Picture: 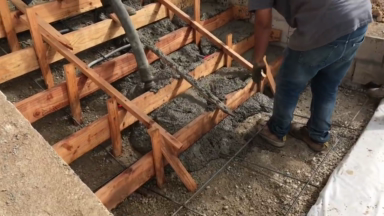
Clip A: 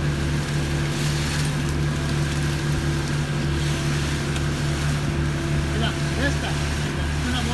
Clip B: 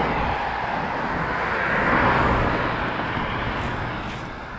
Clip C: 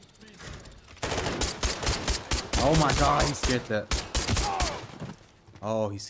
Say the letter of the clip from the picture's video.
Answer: A